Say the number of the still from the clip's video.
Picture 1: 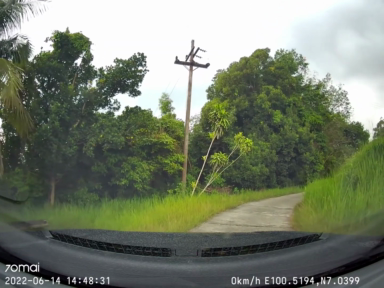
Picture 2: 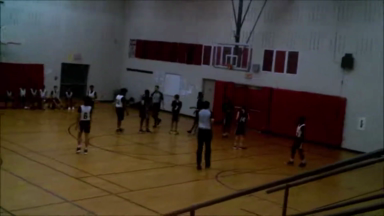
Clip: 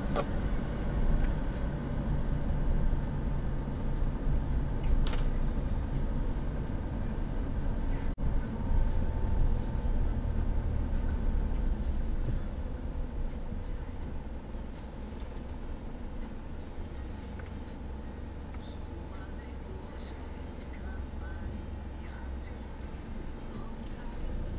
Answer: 1